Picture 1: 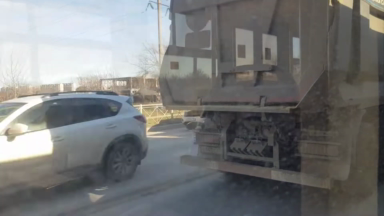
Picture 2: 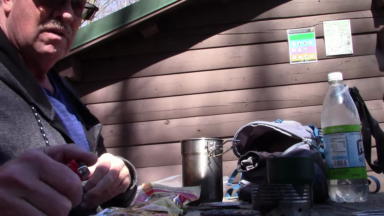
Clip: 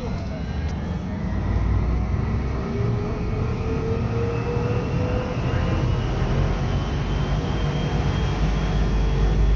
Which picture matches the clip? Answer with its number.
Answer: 1